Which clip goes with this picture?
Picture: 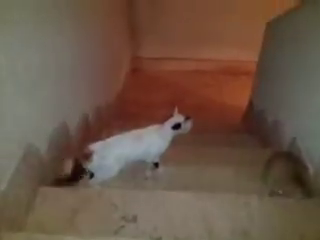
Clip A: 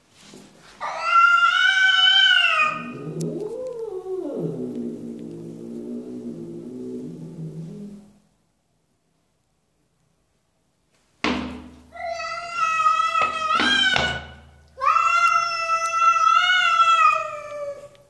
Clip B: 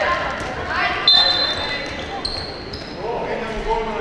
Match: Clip A